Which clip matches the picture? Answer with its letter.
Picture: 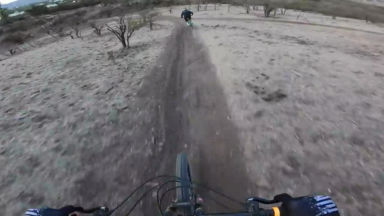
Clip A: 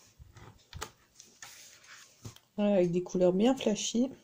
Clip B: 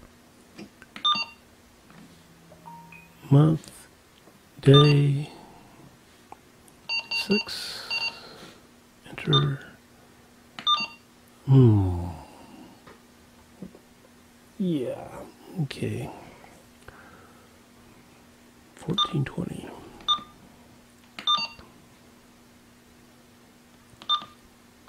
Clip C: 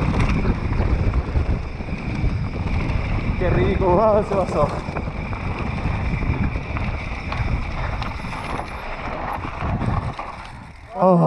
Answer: C